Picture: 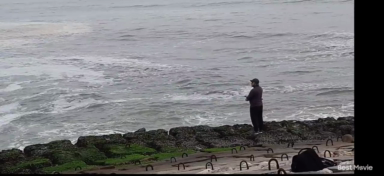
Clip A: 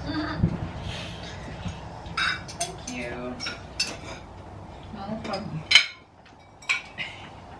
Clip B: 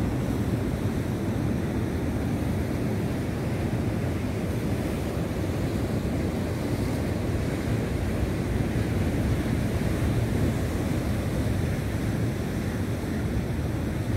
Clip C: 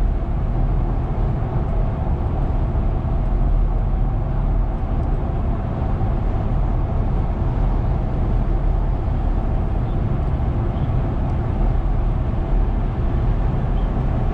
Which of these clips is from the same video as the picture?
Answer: B